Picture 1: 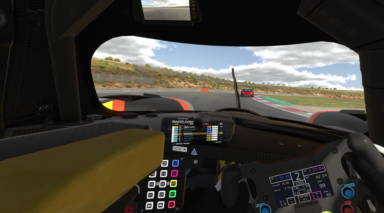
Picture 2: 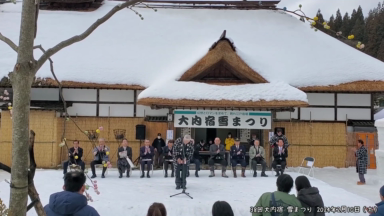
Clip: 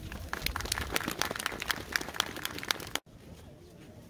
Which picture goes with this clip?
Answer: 2